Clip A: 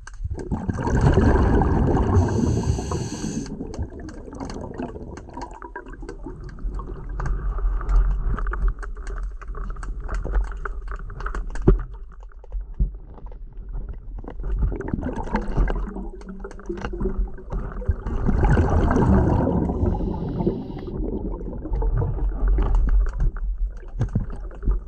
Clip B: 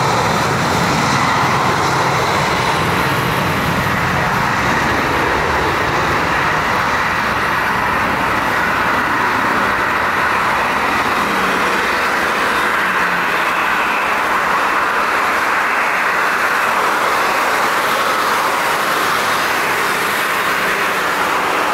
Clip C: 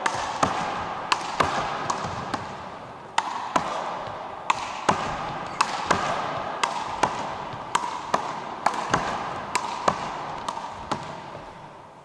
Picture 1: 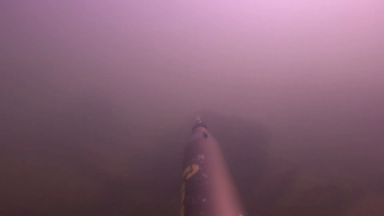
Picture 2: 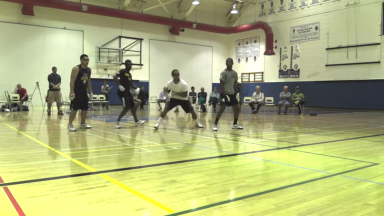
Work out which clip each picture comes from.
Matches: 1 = A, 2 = C